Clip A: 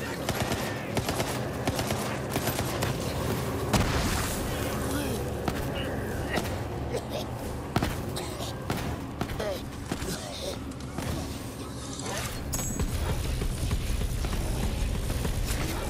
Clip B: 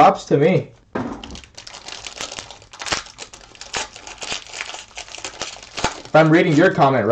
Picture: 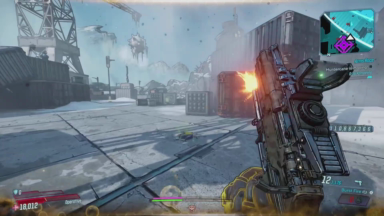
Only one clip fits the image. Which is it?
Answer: A